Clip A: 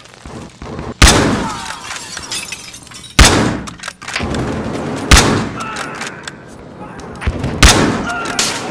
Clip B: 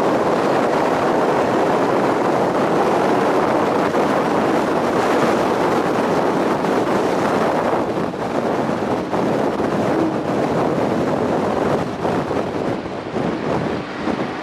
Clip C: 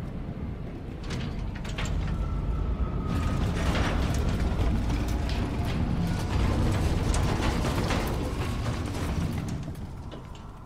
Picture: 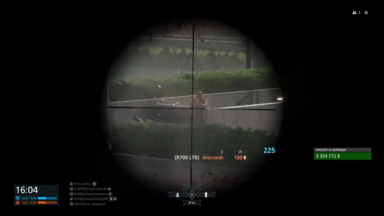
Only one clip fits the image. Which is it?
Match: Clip A